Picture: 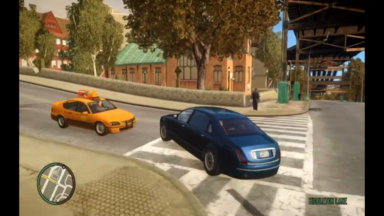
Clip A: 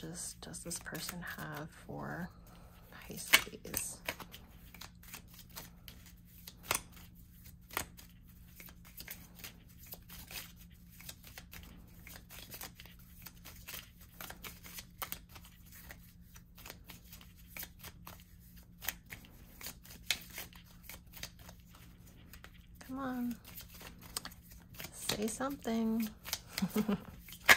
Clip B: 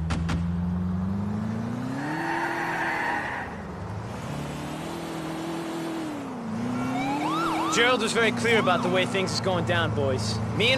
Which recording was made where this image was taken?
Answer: B